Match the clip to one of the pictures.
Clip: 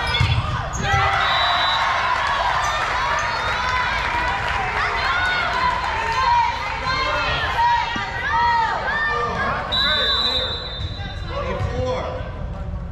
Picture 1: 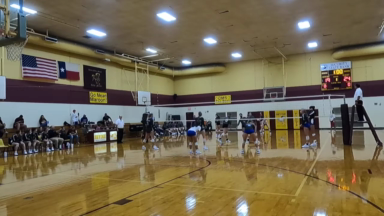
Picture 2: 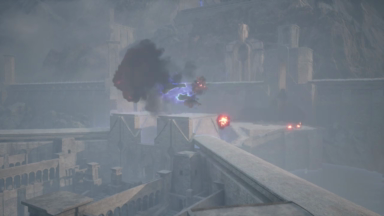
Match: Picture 1